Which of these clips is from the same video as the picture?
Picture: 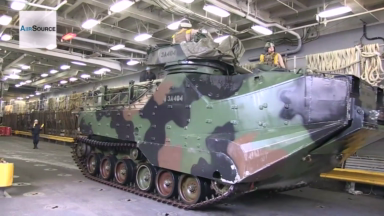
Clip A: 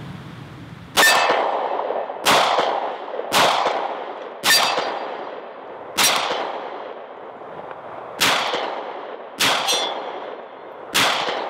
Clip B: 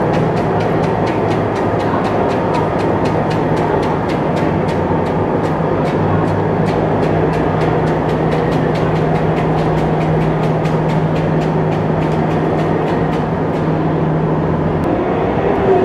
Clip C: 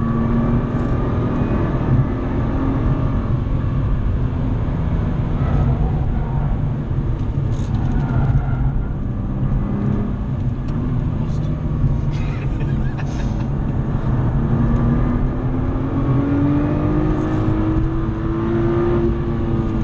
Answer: B